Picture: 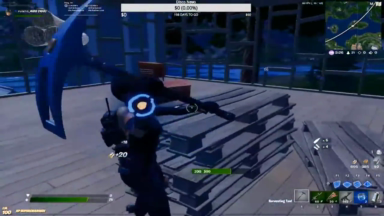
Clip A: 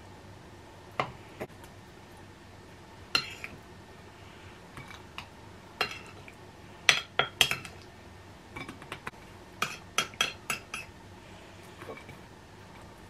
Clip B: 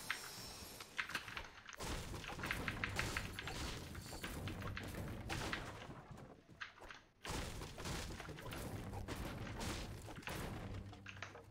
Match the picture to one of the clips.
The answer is B